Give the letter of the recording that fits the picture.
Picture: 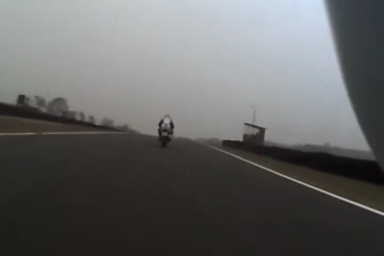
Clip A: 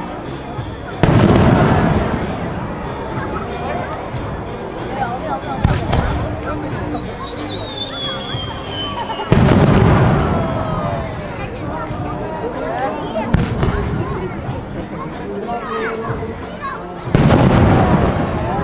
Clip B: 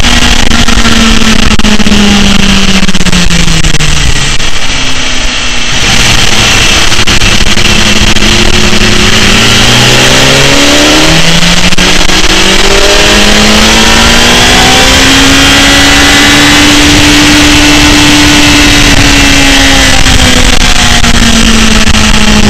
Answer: B